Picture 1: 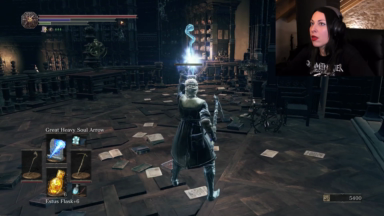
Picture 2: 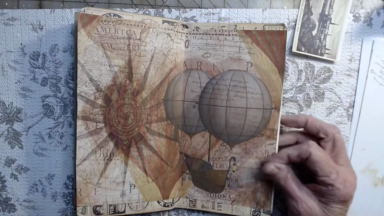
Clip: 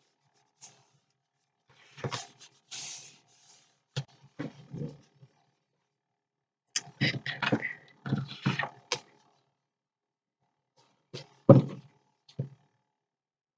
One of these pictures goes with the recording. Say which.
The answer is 2